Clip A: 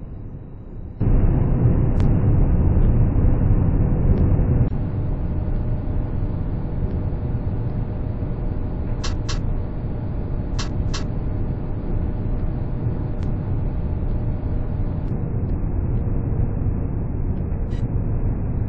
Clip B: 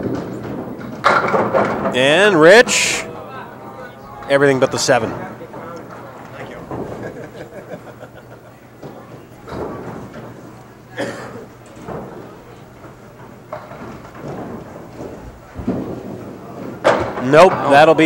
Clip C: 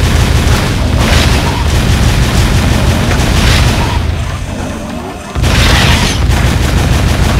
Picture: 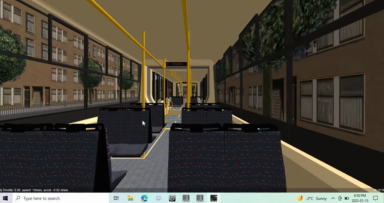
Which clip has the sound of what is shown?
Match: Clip A